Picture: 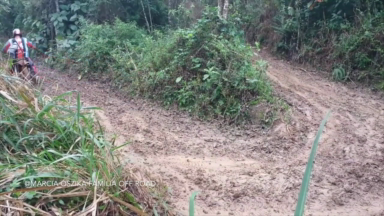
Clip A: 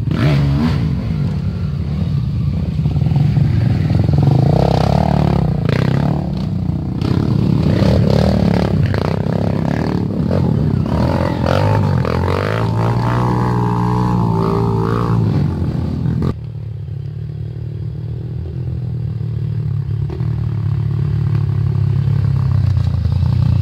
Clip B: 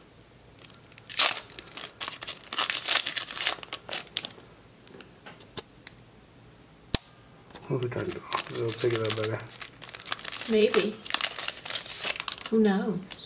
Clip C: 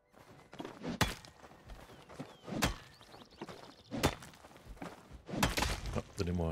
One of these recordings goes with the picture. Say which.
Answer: A